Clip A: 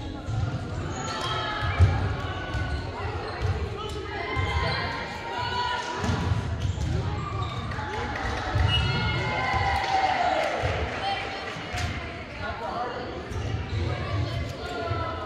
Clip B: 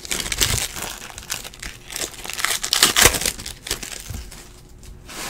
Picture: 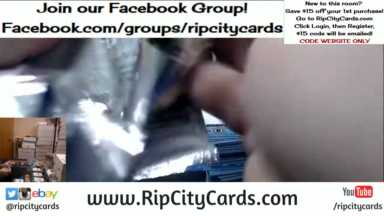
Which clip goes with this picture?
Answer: B